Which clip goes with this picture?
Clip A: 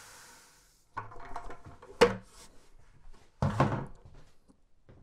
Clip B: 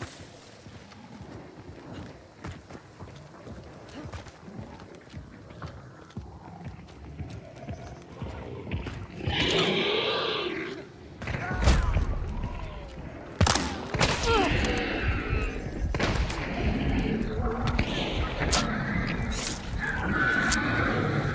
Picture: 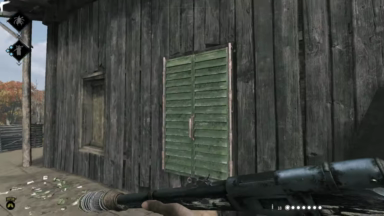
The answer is B